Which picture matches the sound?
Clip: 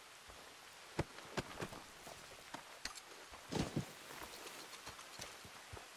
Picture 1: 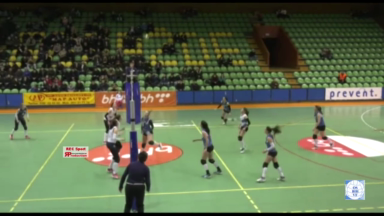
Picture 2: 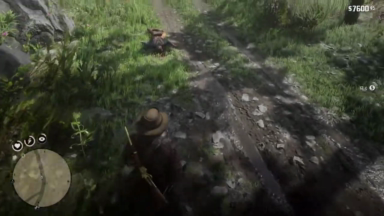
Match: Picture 2